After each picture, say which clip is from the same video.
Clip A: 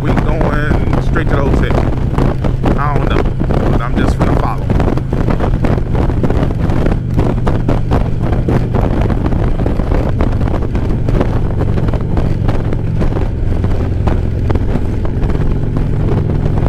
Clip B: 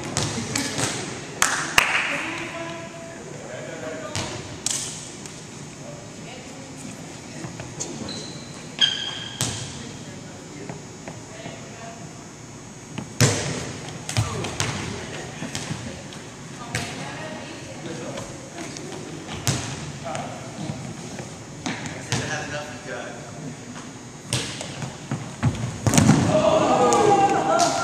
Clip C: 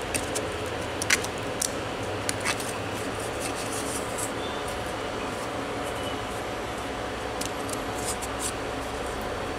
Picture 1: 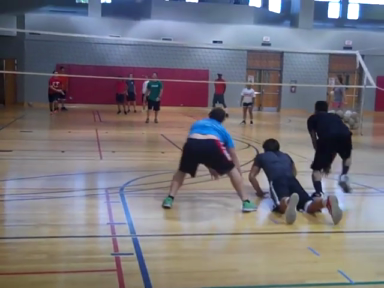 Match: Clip B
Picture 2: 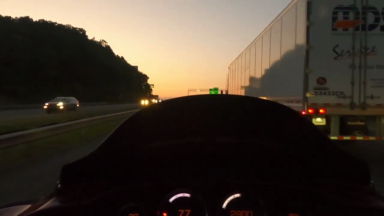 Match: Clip A